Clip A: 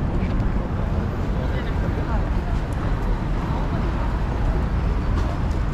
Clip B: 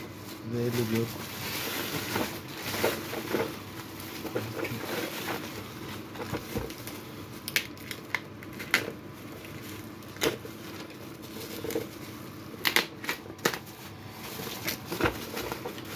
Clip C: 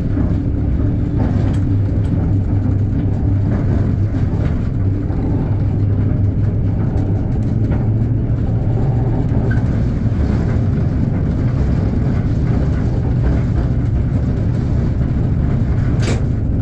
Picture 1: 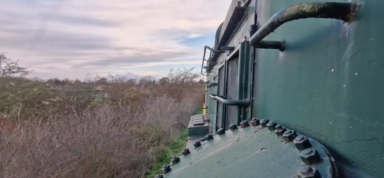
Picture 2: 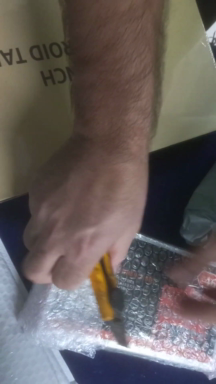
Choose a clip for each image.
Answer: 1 C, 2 B